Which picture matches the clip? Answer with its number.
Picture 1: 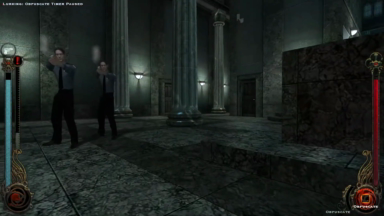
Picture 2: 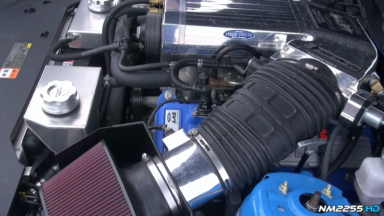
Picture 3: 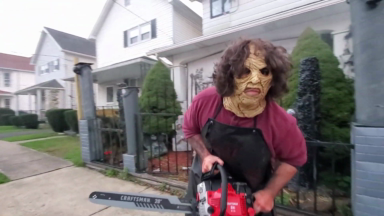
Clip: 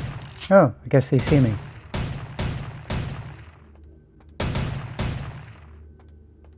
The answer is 1